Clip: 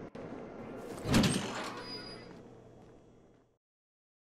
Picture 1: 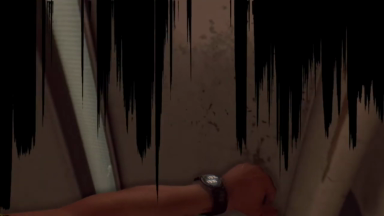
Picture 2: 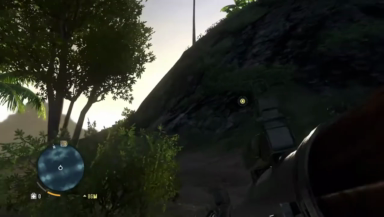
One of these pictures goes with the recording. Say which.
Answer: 1